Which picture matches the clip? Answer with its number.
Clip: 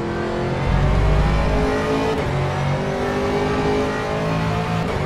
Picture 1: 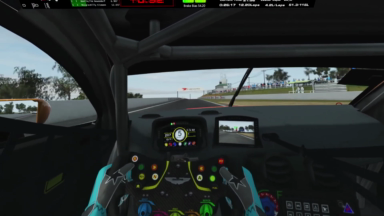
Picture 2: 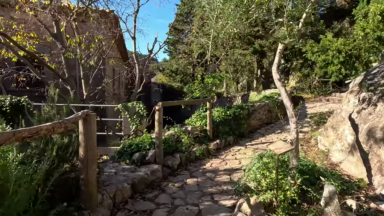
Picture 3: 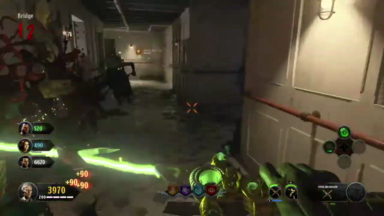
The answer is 1